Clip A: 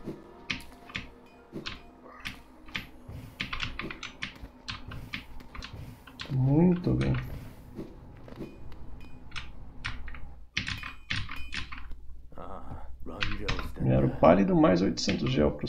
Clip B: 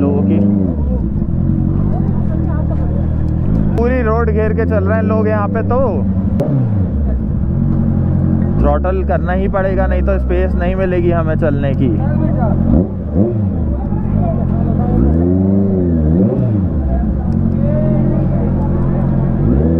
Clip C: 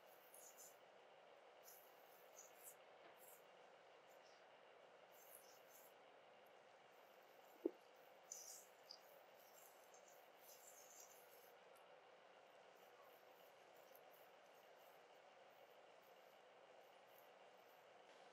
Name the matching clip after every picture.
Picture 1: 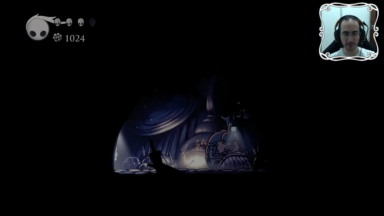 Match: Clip A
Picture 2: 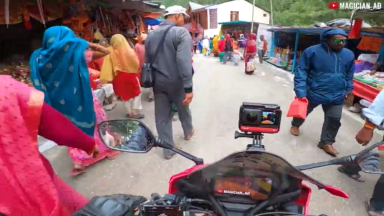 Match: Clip B